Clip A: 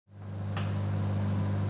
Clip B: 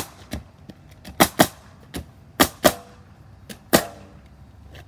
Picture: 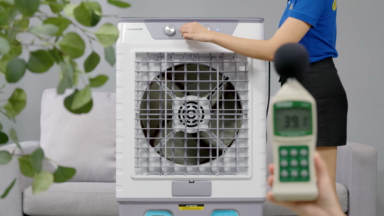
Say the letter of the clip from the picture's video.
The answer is A